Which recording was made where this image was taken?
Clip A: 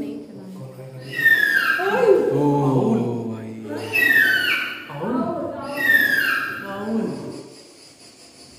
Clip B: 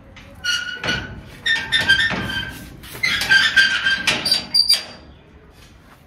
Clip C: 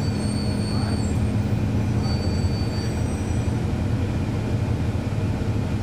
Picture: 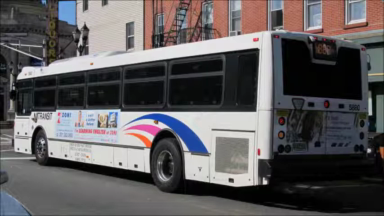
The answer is C